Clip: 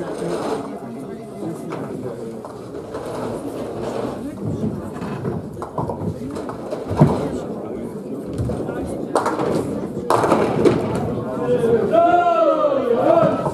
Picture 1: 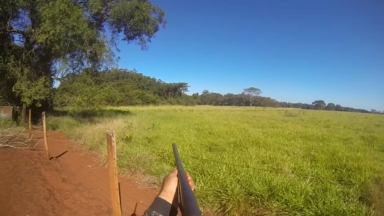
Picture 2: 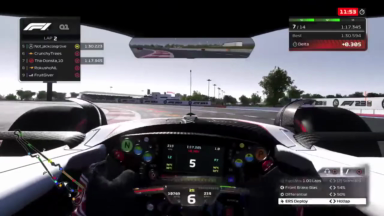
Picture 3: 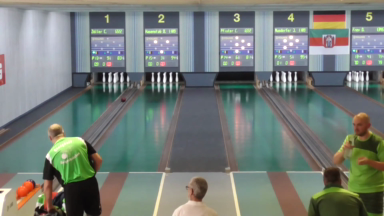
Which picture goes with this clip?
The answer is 3